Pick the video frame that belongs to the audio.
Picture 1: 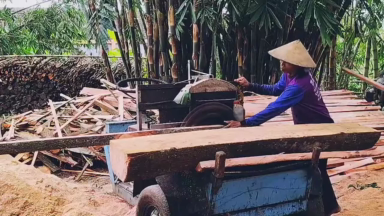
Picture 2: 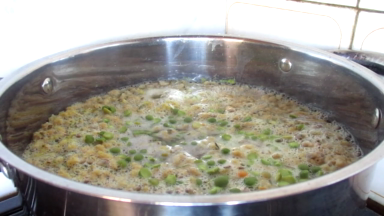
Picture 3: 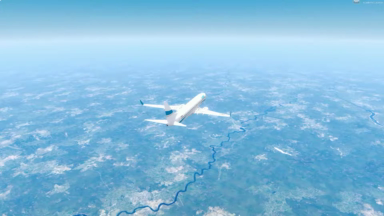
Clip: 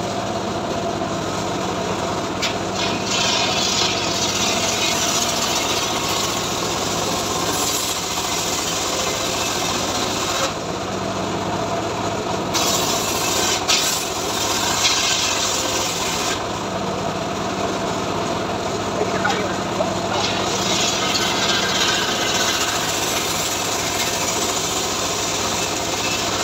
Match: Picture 1